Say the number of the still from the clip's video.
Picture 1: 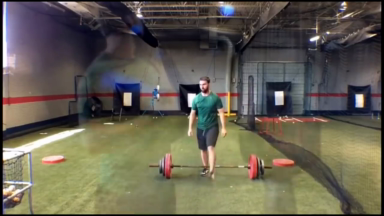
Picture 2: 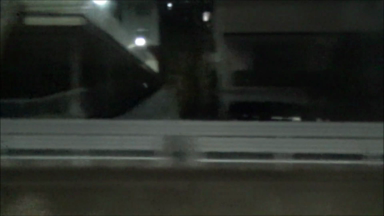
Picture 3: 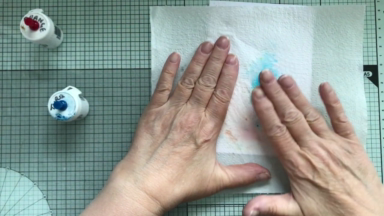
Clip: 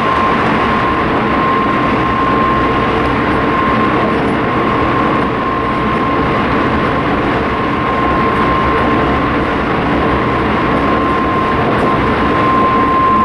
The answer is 2